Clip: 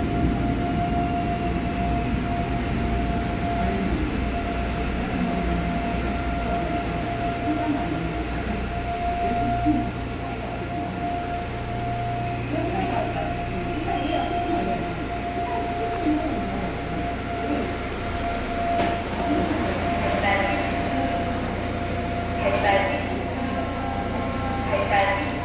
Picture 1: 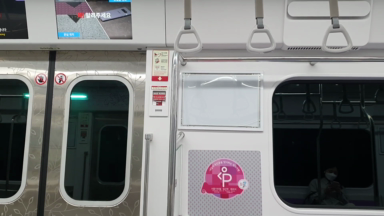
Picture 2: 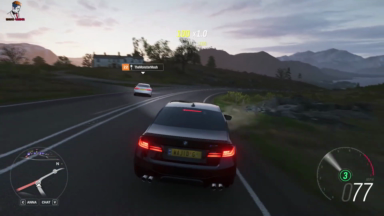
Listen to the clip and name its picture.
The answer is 1